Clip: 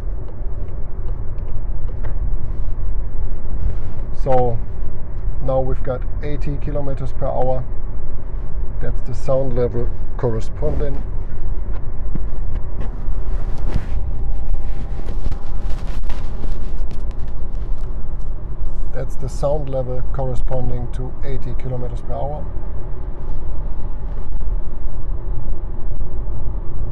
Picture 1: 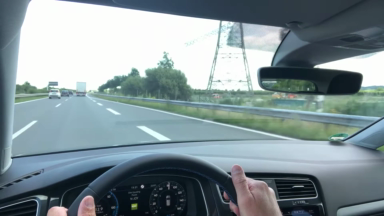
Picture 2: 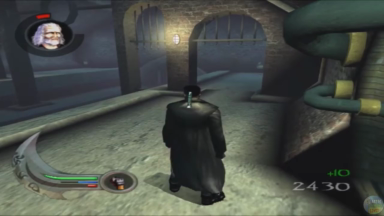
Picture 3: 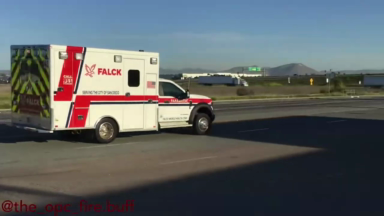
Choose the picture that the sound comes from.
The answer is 1